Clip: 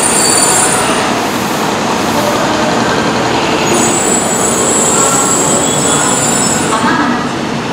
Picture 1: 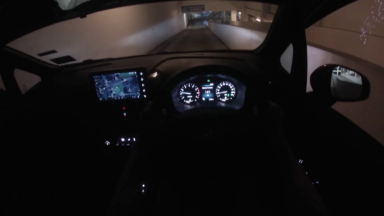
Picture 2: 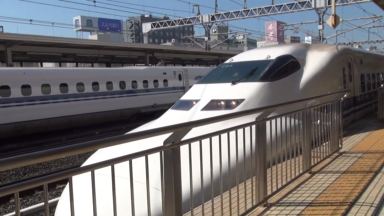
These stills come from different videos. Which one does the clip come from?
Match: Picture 2